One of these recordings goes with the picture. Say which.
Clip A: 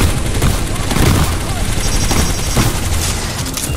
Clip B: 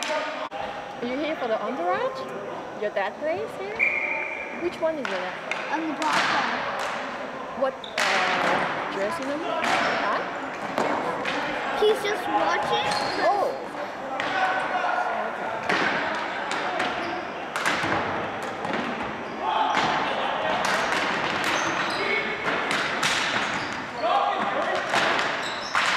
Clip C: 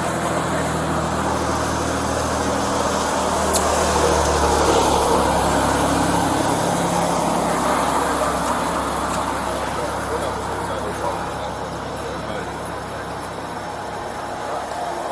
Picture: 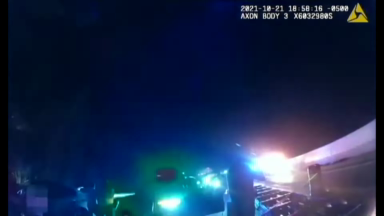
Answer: C